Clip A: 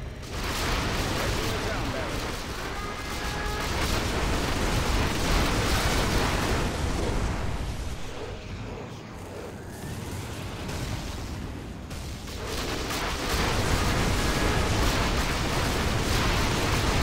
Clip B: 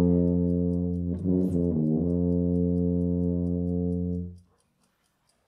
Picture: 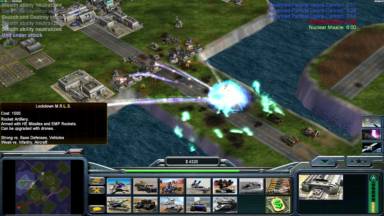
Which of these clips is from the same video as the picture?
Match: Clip A